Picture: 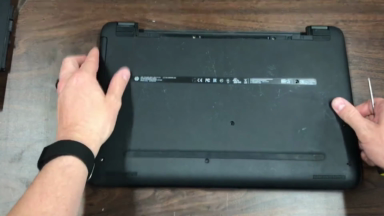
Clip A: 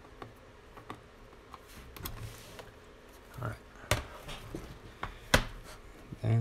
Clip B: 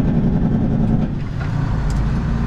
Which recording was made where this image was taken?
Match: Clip A